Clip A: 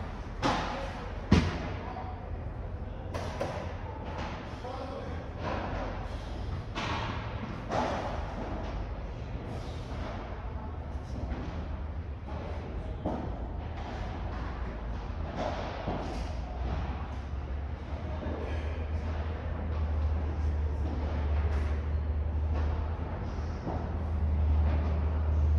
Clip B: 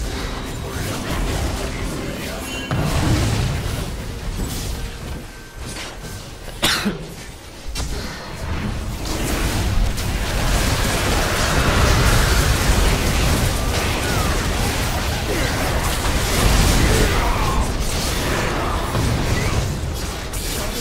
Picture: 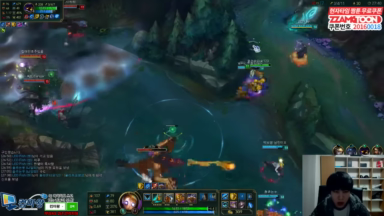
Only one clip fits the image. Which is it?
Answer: B